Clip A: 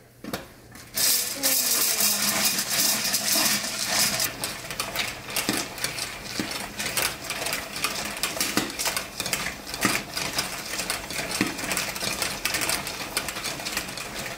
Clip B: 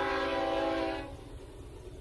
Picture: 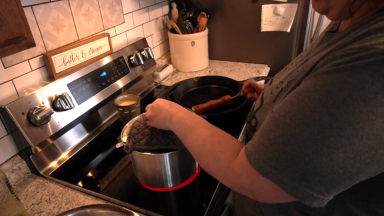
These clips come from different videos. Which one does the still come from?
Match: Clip A